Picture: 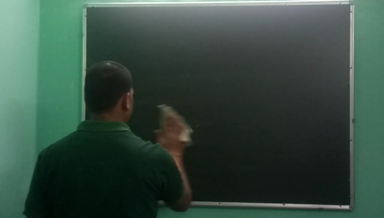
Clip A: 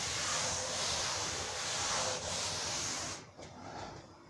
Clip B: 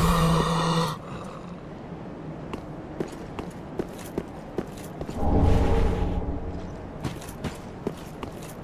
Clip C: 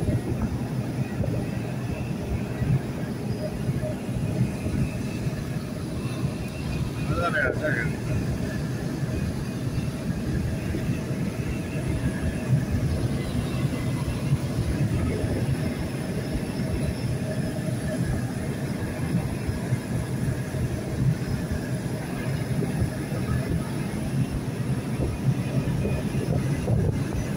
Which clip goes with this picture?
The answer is A